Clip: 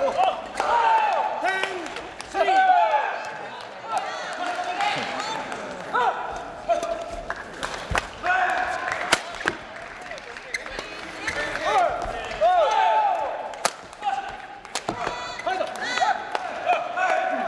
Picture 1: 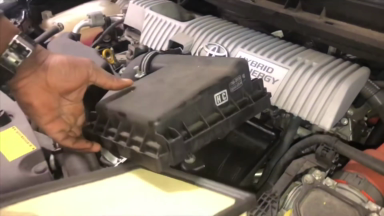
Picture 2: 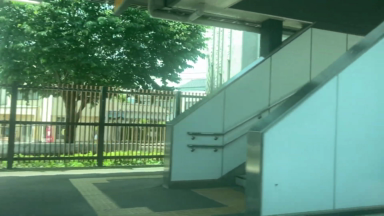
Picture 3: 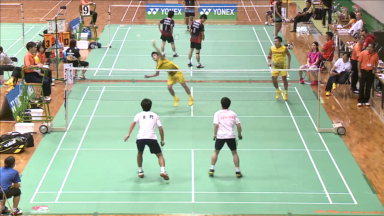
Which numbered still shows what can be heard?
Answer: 3